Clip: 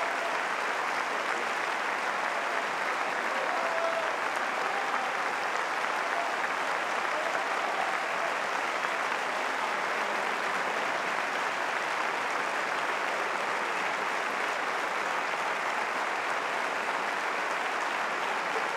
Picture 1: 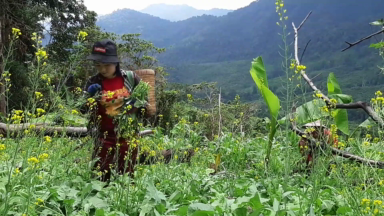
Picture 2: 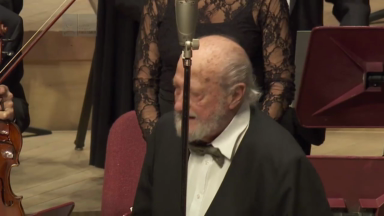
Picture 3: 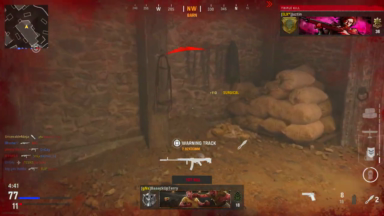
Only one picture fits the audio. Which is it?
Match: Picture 2